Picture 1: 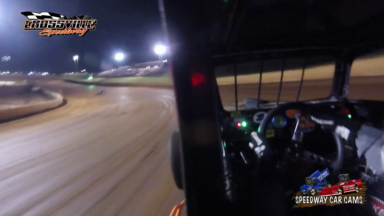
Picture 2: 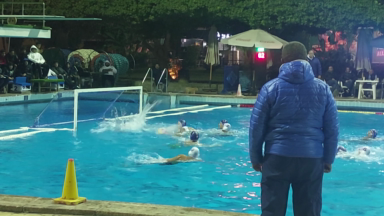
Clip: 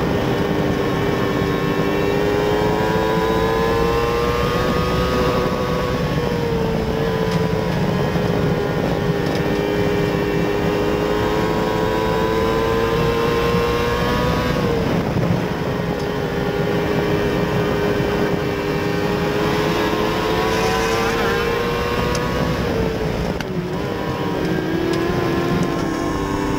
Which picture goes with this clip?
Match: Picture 1